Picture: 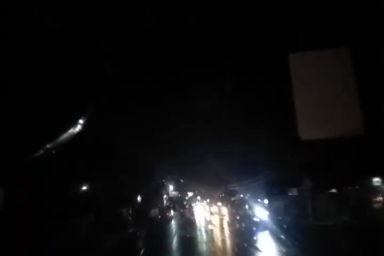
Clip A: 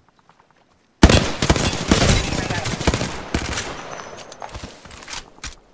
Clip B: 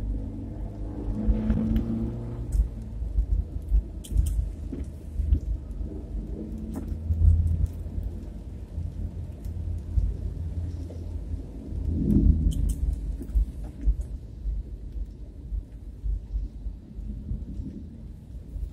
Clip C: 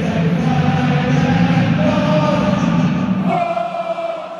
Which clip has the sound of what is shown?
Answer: B